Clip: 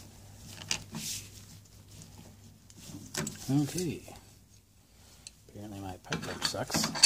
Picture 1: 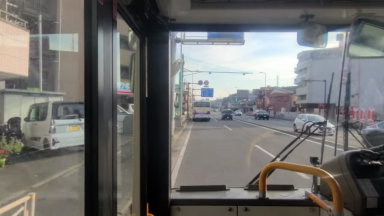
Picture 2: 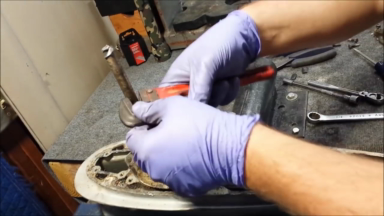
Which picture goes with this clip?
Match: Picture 2